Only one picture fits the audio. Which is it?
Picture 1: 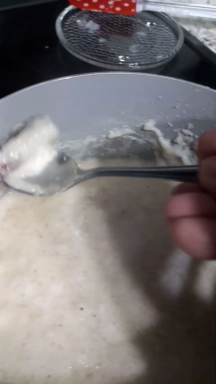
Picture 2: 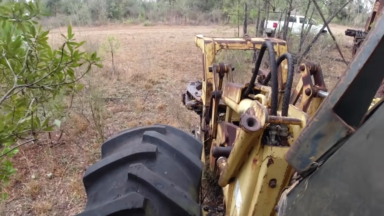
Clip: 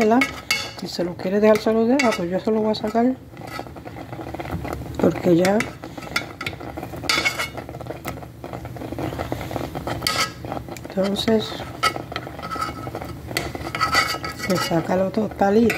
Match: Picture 1